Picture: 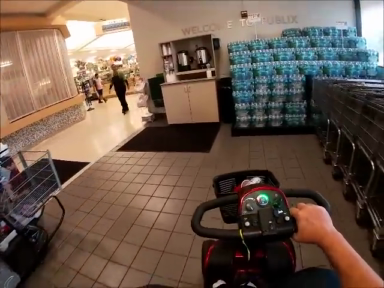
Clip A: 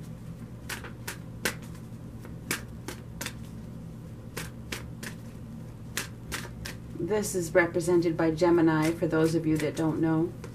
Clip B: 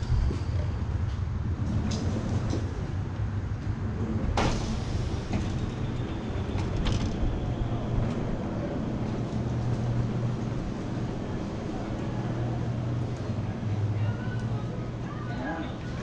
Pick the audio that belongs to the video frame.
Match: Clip B